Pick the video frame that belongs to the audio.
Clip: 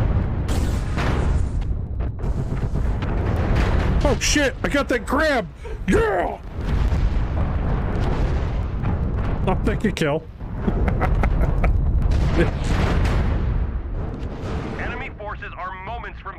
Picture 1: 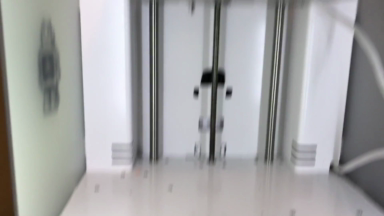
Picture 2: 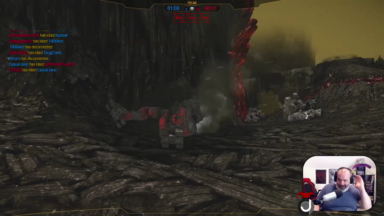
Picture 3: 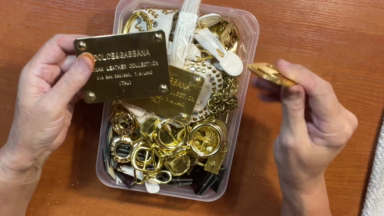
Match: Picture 2